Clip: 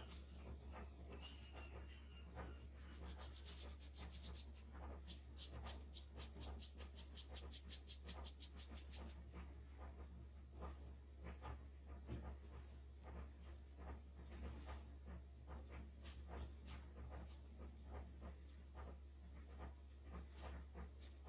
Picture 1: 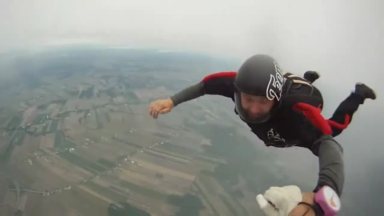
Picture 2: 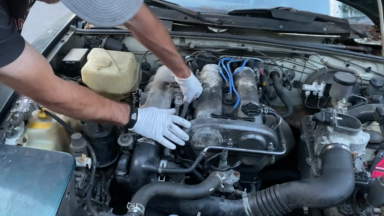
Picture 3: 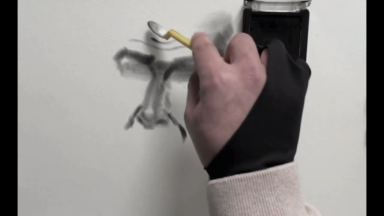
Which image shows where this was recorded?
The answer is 3